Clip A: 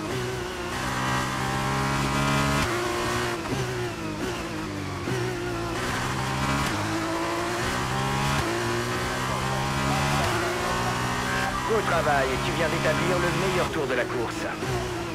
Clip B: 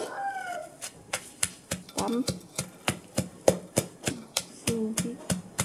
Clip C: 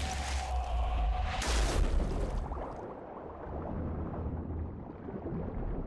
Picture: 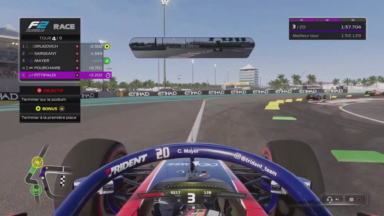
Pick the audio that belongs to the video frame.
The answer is A